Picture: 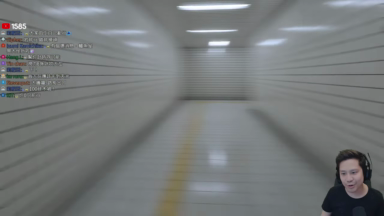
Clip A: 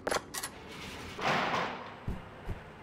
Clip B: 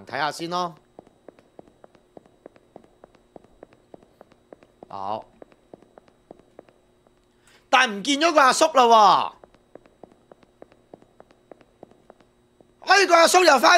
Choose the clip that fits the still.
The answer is B